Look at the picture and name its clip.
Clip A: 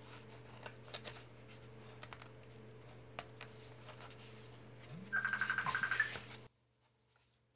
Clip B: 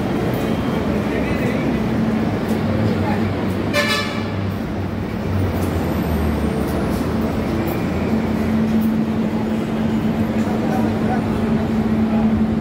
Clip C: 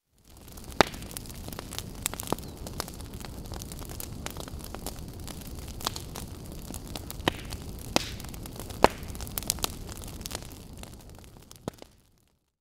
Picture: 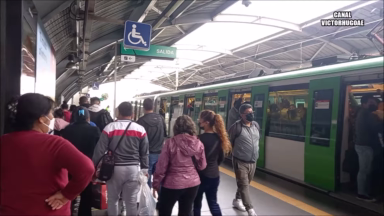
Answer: B